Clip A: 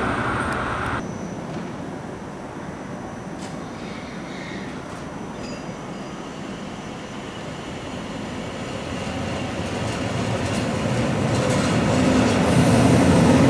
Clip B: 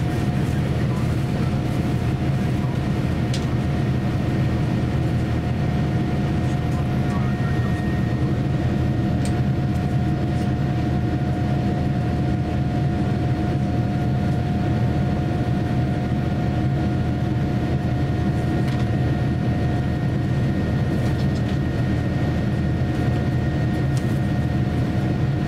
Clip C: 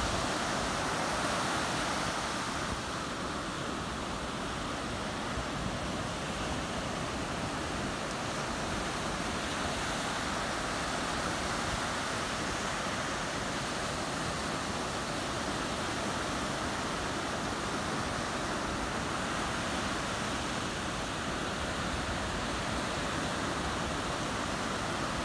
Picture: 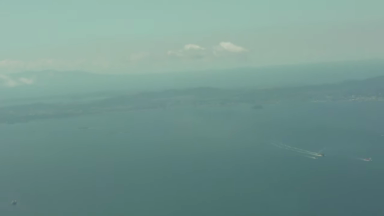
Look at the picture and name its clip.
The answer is B